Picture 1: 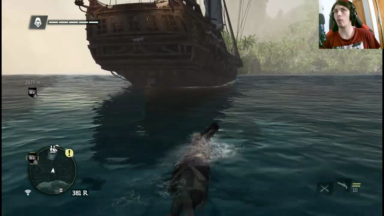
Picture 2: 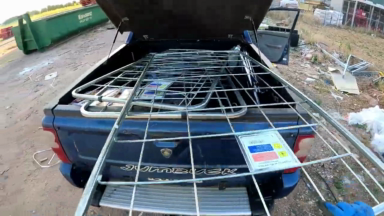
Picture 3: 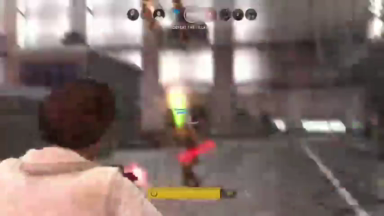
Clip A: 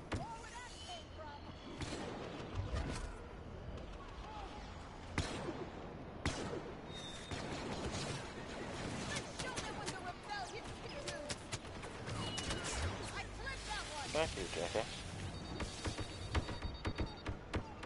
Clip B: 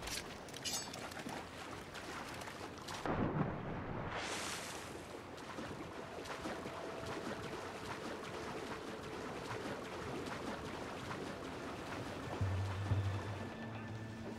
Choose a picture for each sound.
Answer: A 3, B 1